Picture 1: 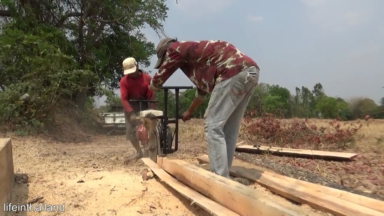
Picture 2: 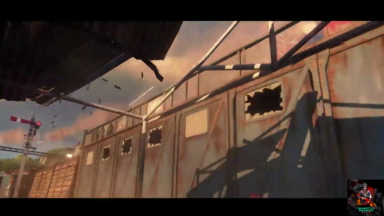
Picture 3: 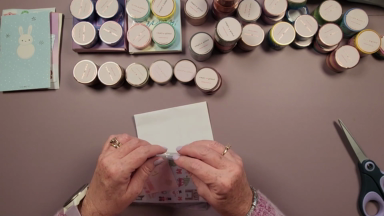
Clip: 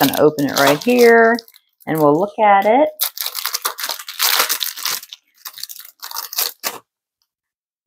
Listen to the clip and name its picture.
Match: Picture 3